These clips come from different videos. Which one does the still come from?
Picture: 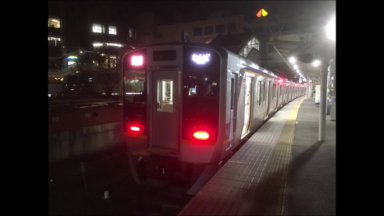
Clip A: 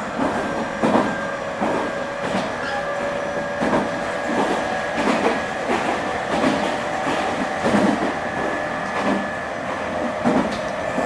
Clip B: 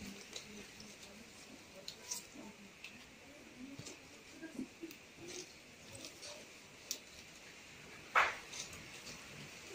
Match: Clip A